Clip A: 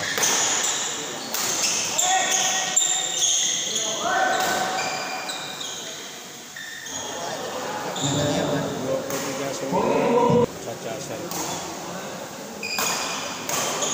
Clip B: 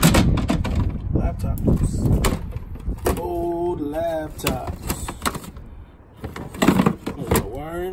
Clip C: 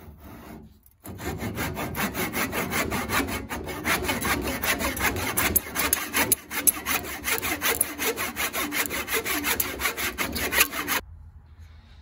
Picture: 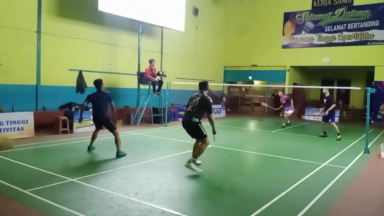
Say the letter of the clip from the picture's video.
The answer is A